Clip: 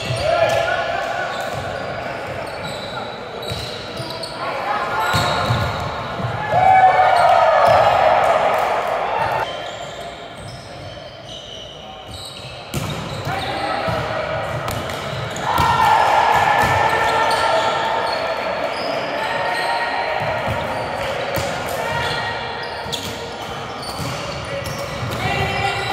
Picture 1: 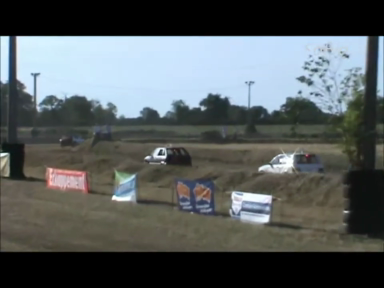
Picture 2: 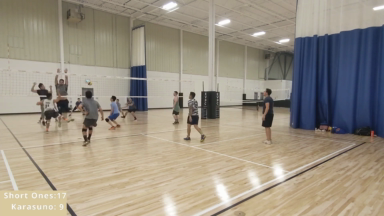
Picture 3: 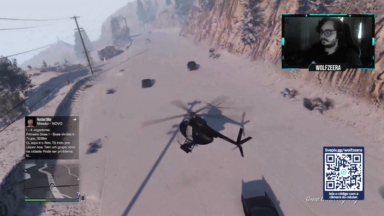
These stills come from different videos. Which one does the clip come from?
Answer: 2